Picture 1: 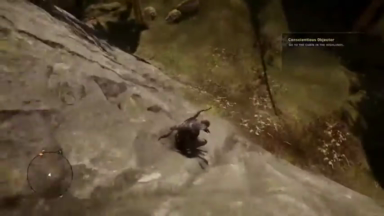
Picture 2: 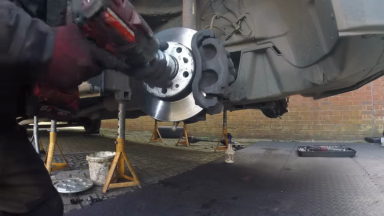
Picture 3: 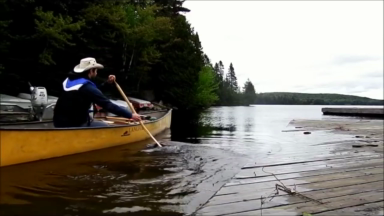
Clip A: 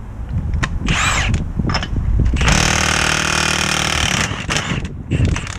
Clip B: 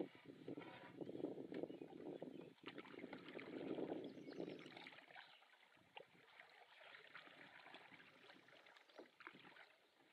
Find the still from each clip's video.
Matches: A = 2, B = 3